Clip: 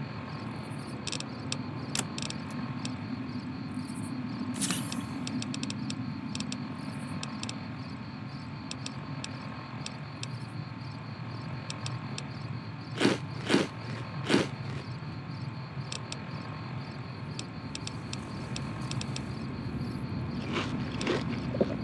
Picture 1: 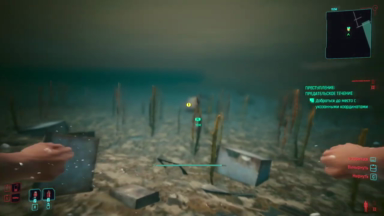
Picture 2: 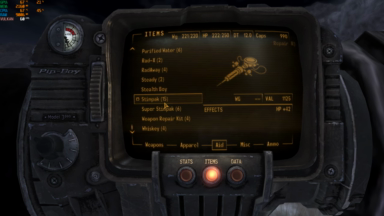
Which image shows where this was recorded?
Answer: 2